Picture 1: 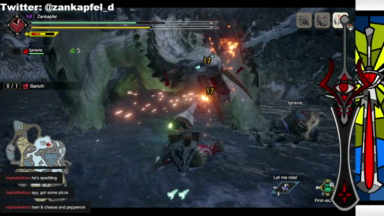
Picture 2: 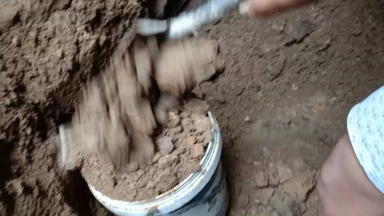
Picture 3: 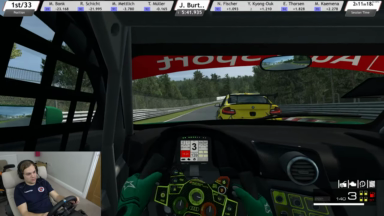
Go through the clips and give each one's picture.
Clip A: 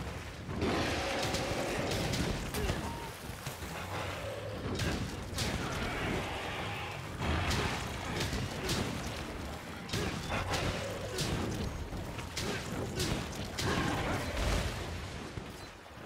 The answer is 1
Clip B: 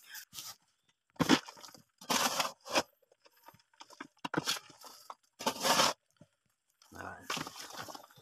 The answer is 2